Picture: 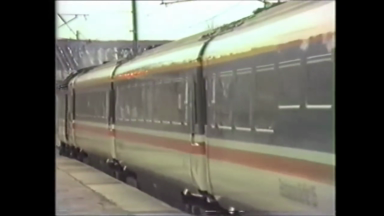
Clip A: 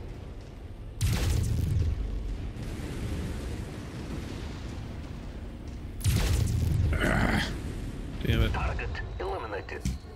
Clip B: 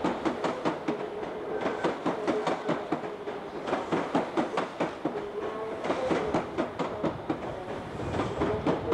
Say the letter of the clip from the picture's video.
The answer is B